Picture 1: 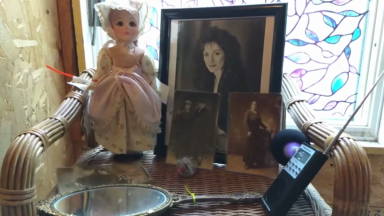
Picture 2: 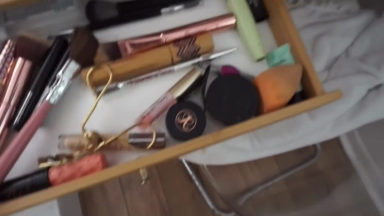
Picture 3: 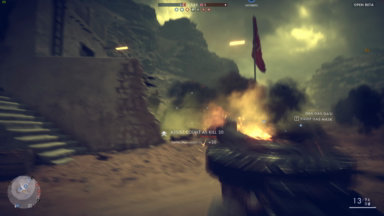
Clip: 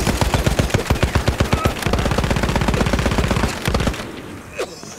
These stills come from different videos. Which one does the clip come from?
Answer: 3